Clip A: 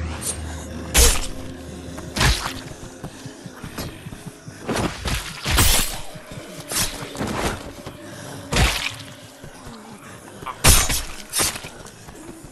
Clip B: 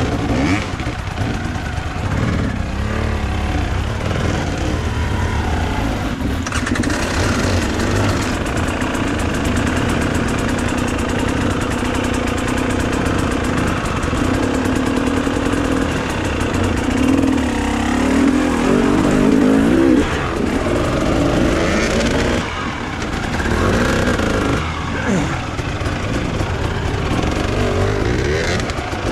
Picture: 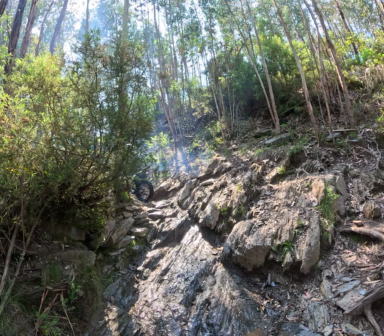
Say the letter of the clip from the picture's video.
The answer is B